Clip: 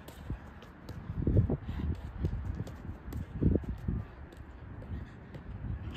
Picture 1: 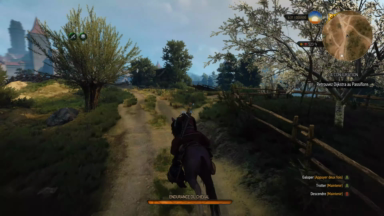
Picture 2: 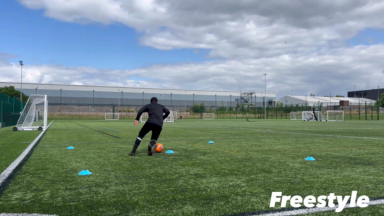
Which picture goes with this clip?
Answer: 2